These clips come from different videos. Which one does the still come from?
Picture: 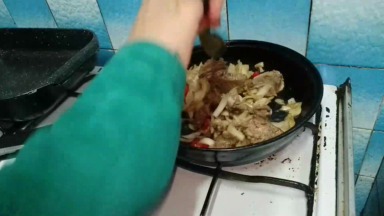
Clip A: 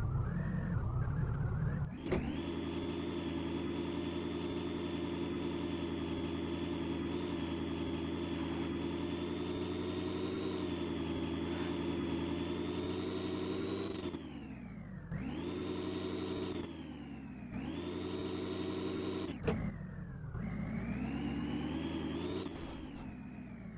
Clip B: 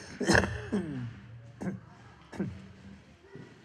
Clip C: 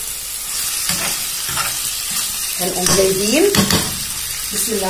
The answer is C